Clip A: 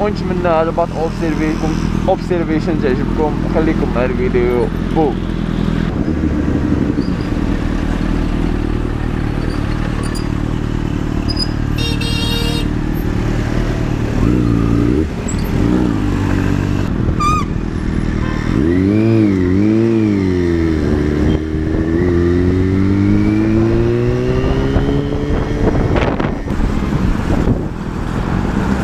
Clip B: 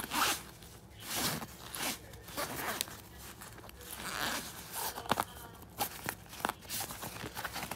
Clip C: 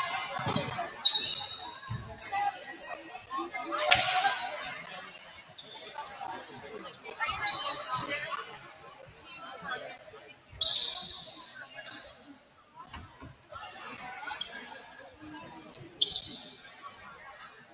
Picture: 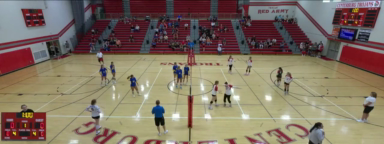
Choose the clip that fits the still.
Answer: C